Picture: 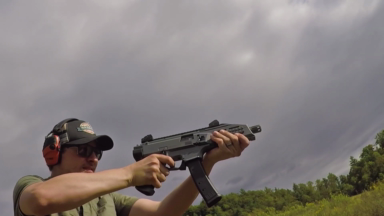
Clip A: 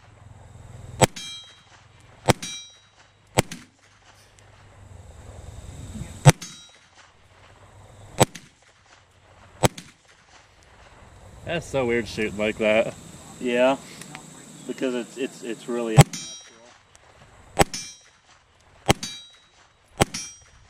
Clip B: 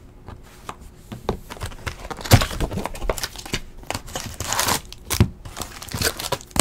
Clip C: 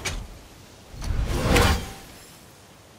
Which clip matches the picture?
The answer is A